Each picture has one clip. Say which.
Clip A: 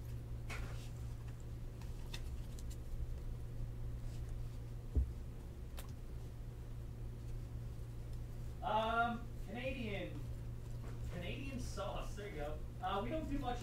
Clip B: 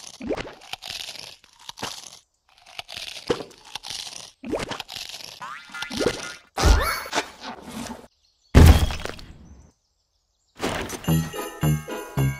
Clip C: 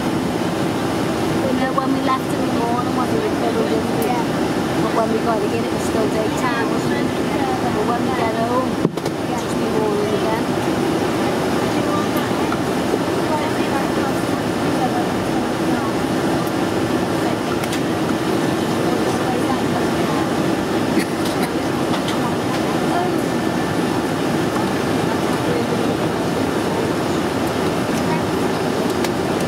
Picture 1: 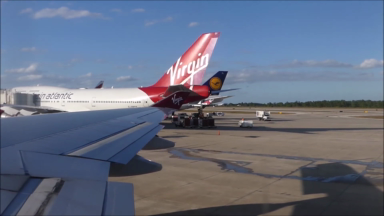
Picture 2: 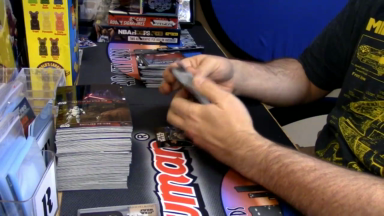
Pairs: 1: C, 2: A